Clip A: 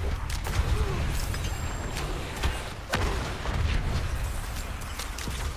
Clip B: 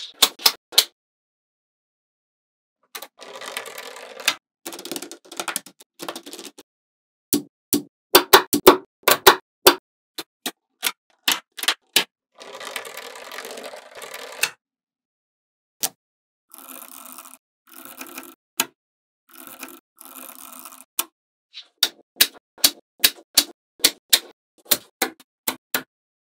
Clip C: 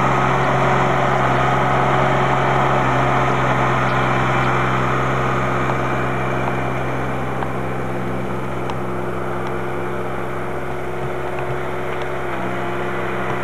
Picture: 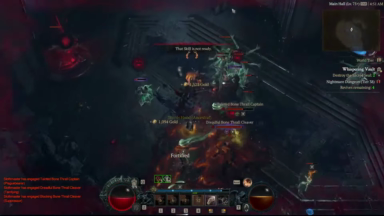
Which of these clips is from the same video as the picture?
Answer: A